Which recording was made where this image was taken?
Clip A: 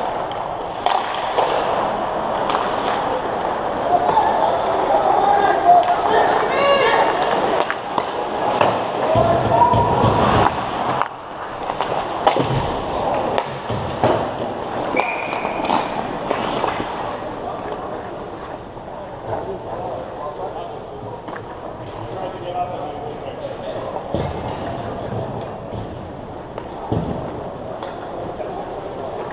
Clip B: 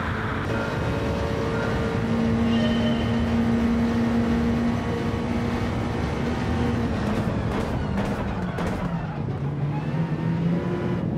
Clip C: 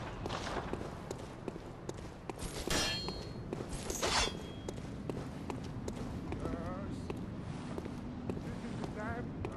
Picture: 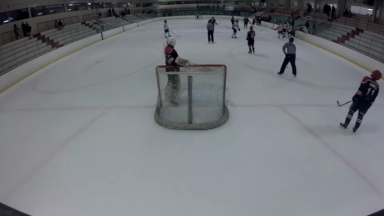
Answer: A